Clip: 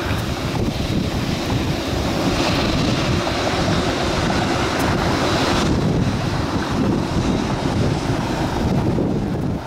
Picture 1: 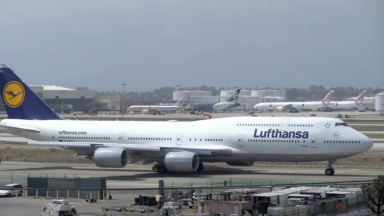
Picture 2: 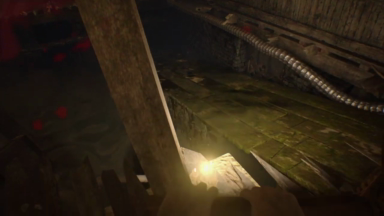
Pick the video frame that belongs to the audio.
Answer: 1